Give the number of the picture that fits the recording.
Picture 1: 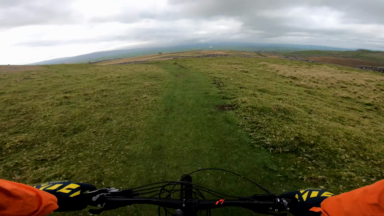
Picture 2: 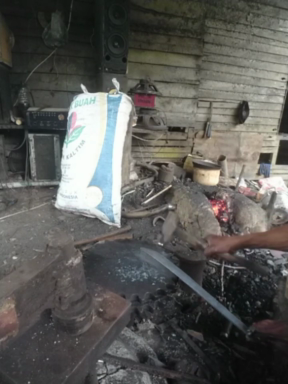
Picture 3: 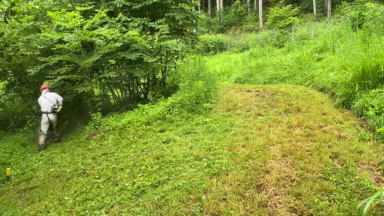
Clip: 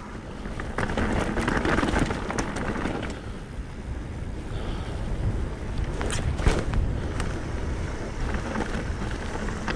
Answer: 1